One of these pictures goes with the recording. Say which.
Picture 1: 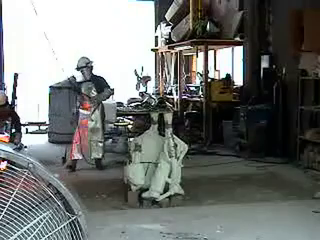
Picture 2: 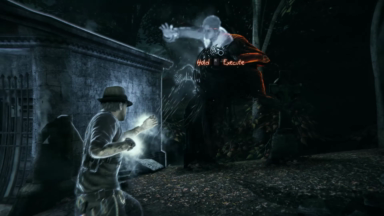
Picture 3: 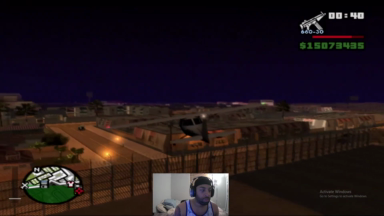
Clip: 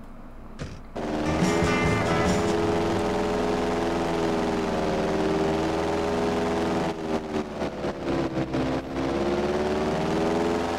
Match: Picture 3